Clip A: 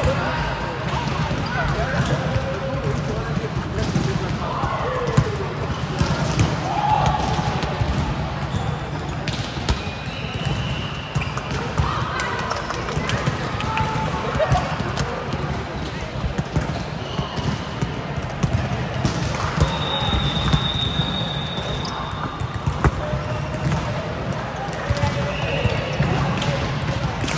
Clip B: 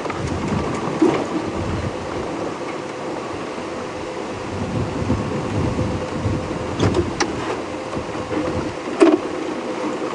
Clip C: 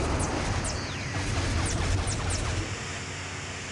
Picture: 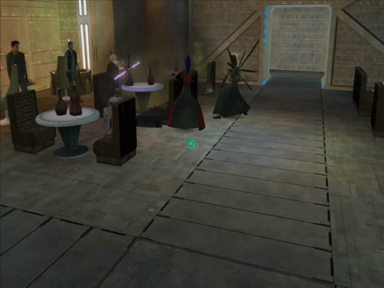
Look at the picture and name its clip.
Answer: C